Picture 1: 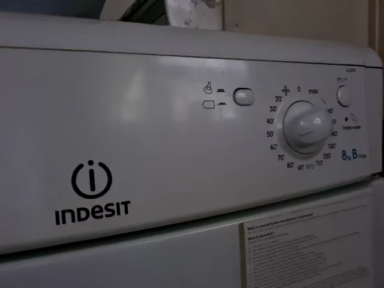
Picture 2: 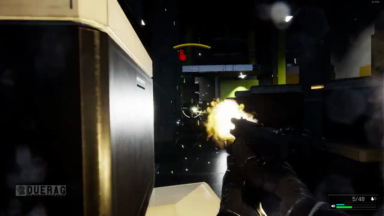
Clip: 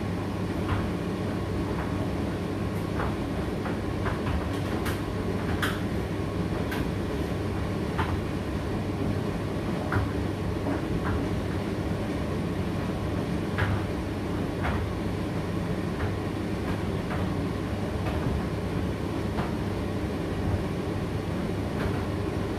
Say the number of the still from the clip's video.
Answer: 1